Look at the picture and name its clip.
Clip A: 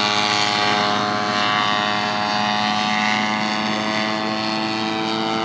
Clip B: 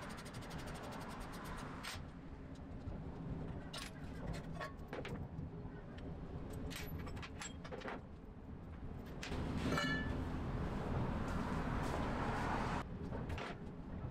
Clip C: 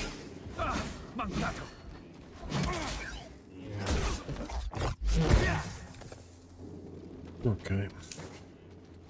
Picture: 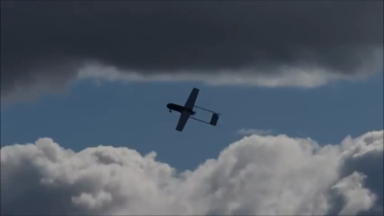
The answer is A